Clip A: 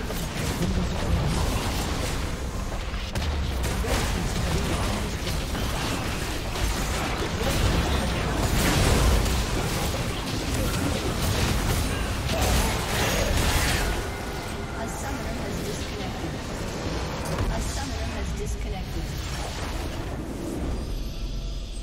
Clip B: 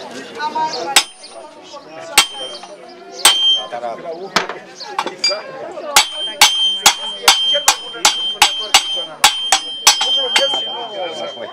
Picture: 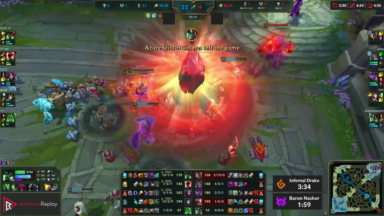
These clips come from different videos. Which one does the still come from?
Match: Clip A